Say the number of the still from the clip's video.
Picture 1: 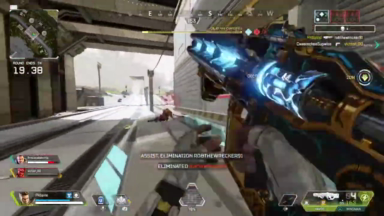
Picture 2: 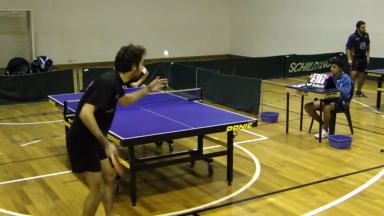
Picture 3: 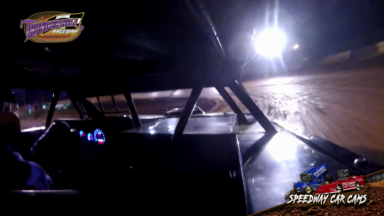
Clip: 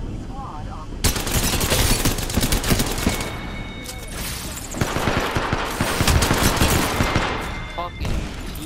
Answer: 1